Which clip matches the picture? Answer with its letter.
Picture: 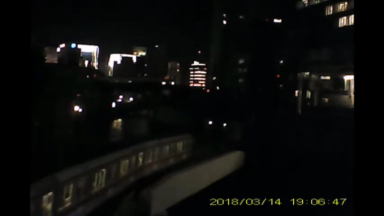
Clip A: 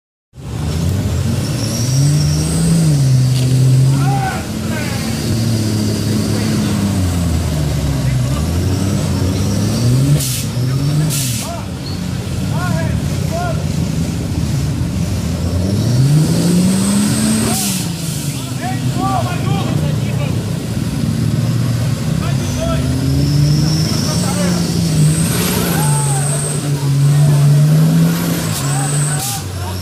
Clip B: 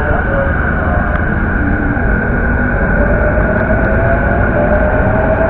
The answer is B